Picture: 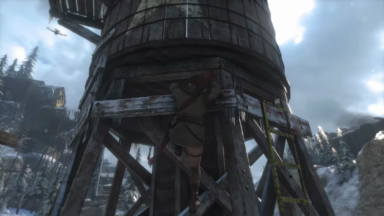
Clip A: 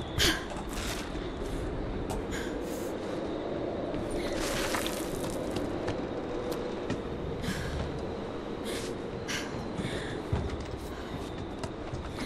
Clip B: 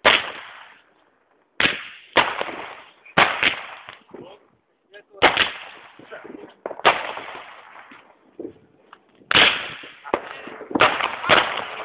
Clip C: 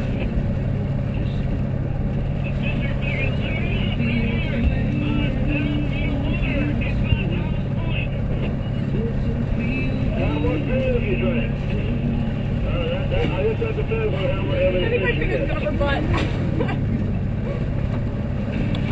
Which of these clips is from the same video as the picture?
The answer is A